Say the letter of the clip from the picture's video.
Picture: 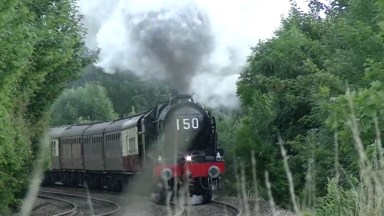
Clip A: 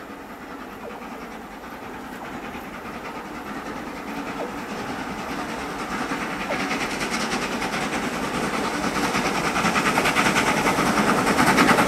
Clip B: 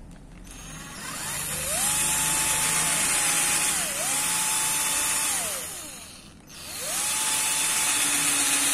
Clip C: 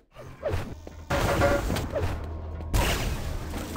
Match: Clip A